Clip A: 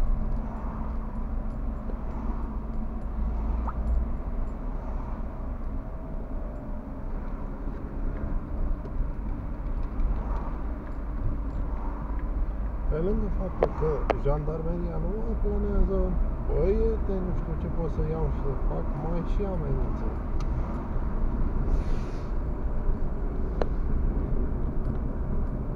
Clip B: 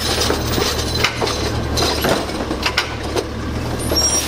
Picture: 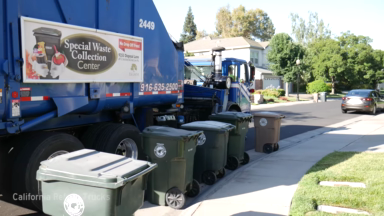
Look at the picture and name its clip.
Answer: B